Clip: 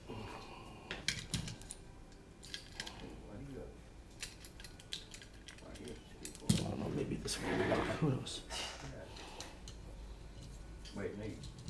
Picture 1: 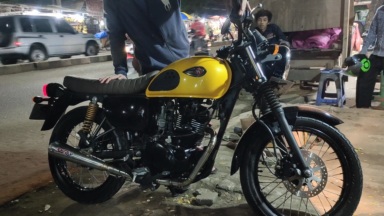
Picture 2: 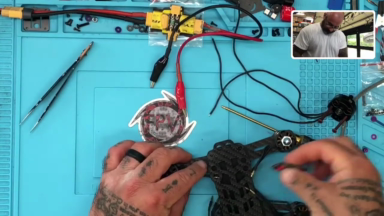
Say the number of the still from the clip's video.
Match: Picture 2